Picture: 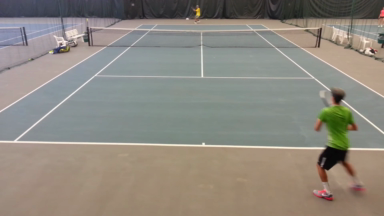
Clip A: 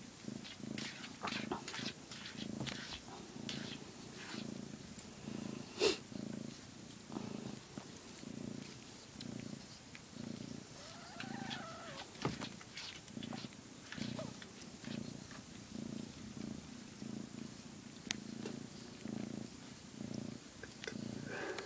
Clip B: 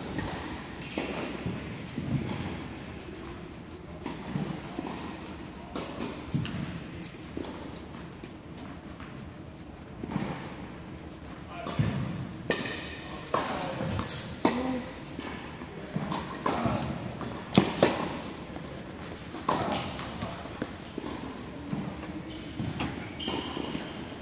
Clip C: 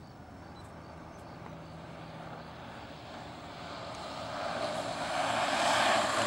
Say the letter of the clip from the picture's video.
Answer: B